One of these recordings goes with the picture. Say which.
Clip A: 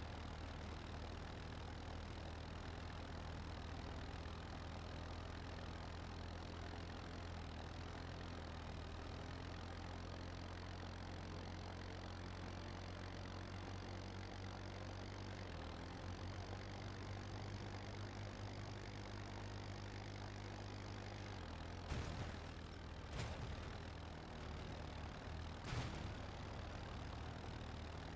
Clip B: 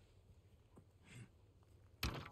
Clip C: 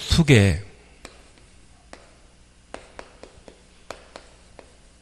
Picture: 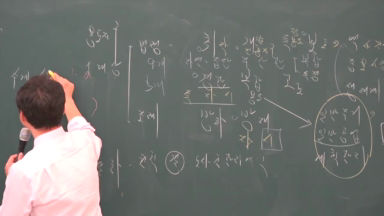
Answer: C